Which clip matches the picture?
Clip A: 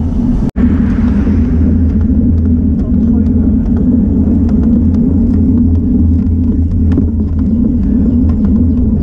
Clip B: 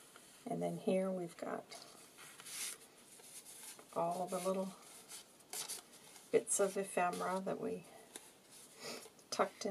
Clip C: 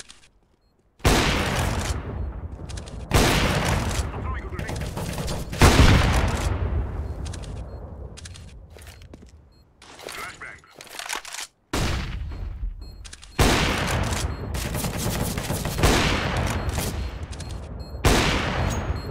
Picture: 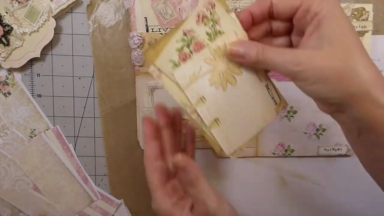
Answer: B